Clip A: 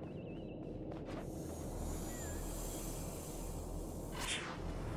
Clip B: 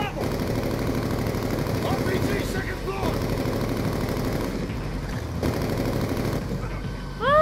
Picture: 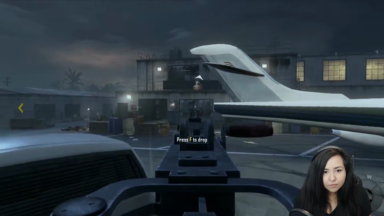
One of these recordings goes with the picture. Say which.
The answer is B